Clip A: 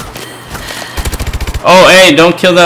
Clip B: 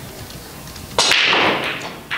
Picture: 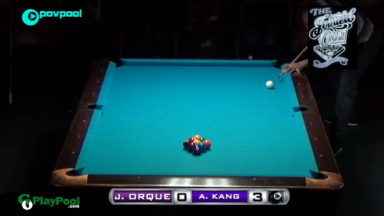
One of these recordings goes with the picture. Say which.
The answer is B